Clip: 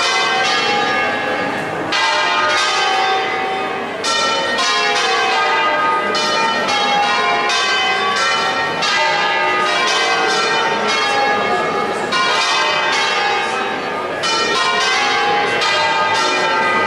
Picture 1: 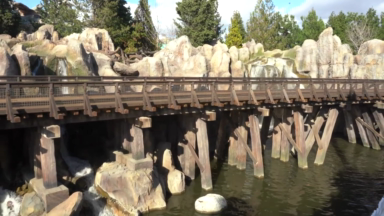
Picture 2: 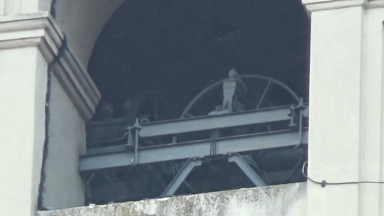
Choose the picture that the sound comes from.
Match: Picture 2